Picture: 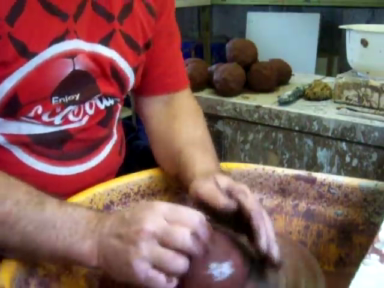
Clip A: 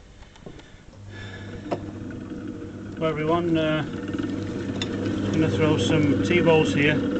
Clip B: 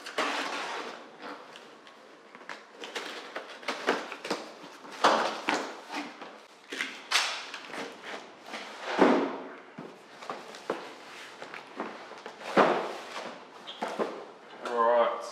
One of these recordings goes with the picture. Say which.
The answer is A